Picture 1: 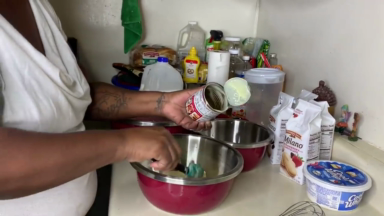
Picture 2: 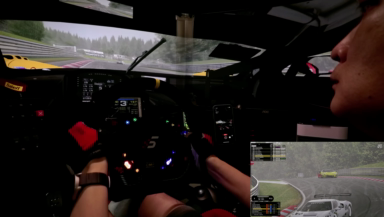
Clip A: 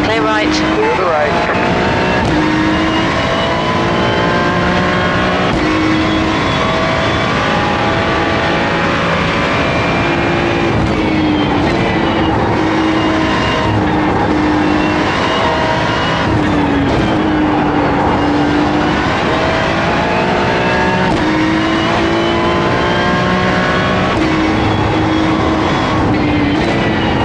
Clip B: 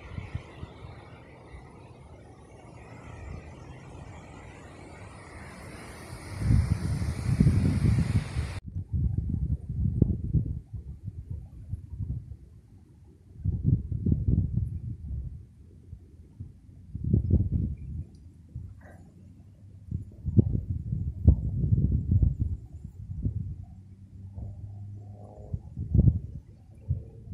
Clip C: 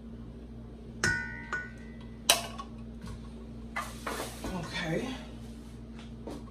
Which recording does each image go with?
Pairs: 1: C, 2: A